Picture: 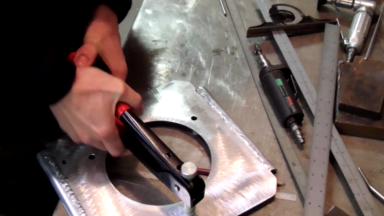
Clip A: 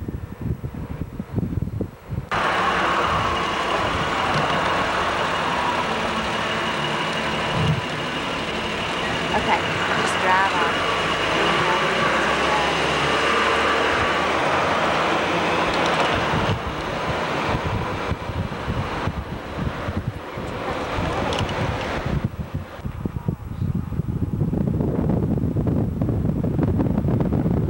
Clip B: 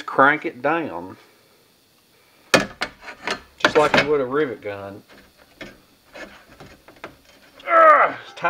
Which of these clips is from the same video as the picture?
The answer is B